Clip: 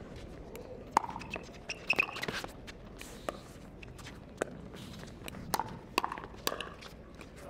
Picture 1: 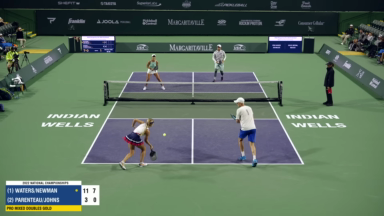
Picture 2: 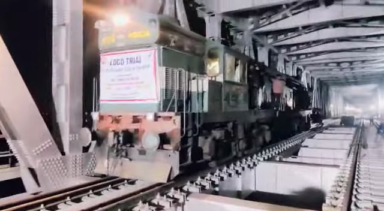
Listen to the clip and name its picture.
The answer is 1